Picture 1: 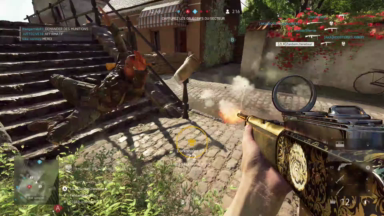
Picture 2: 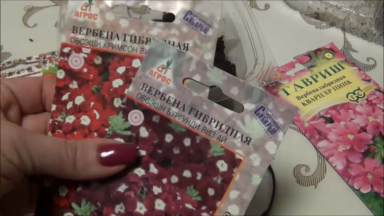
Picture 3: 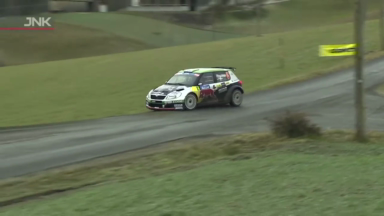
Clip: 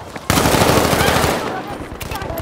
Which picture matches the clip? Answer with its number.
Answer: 1